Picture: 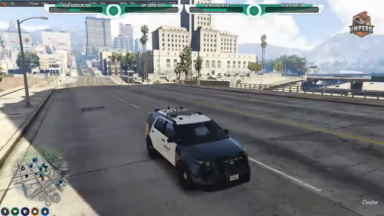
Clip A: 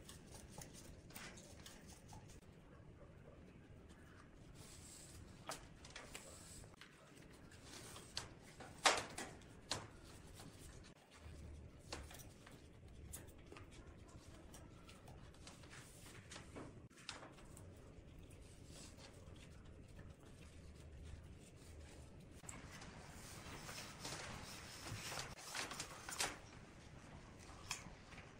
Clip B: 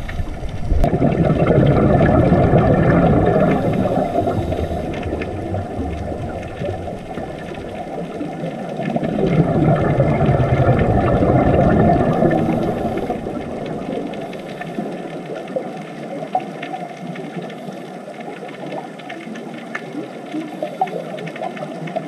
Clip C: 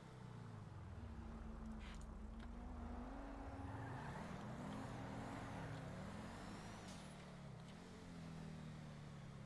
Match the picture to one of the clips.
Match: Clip C